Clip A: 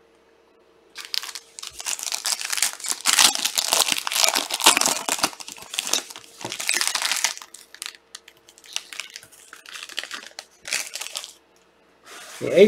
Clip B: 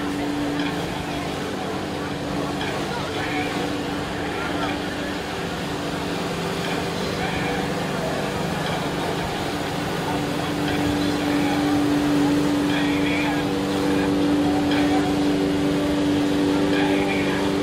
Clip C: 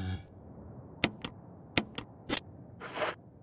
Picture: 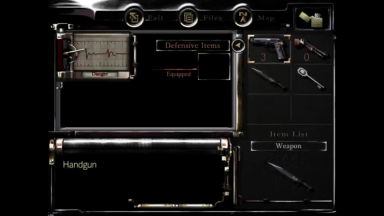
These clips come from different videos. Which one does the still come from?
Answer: C